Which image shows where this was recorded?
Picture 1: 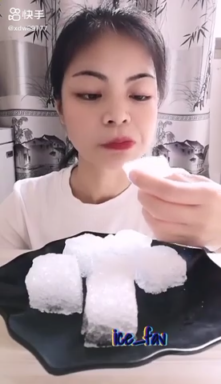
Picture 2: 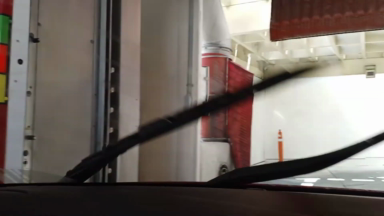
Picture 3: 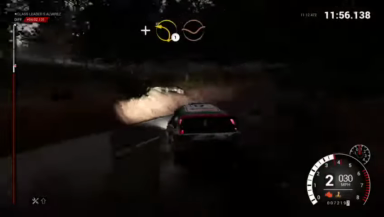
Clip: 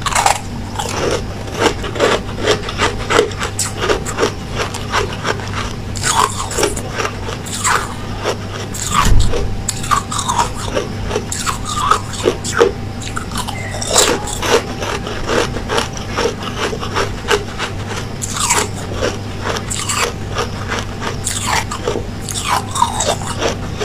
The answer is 1